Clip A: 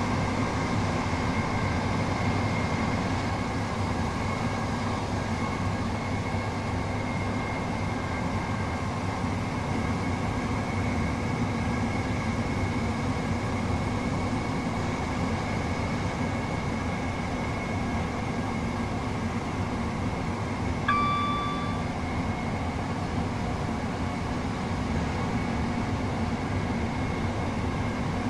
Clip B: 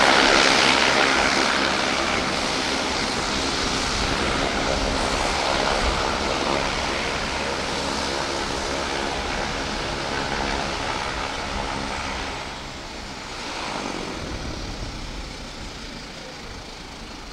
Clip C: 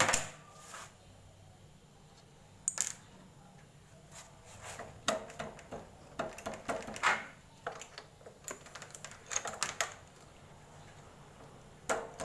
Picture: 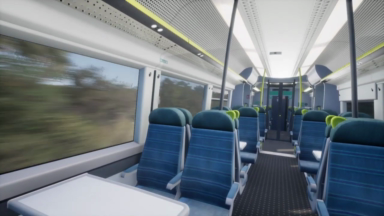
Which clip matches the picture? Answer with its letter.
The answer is A